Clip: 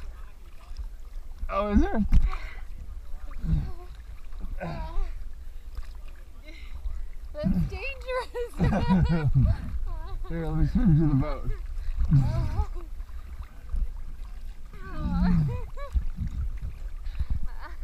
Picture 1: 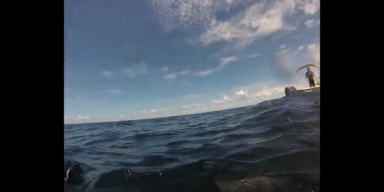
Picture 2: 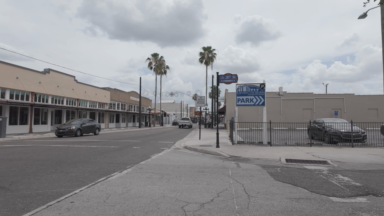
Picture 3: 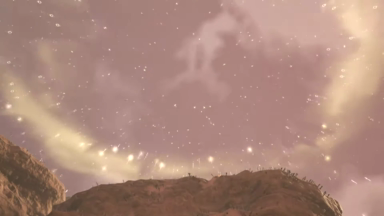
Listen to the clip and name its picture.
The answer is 1